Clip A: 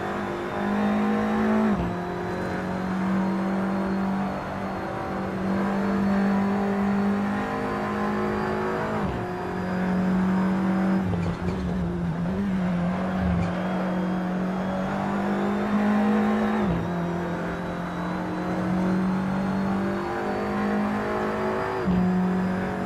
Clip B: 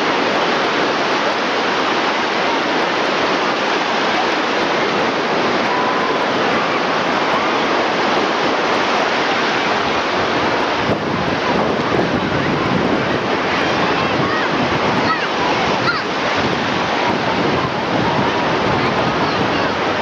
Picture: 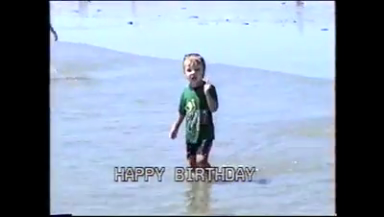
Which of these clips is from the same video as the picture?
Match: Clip B